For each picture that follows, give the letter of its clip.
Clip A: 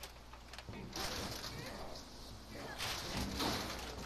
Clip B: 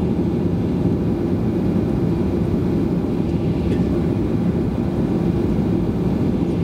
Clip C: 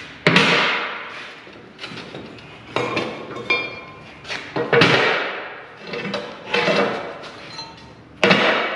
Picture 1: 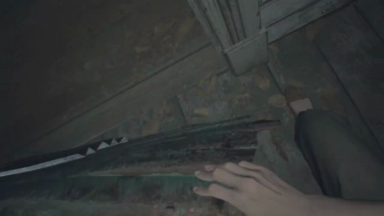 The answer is A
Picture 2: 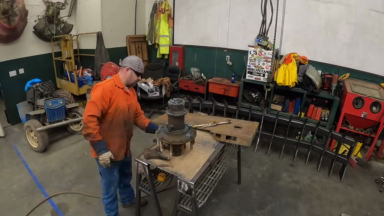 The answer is C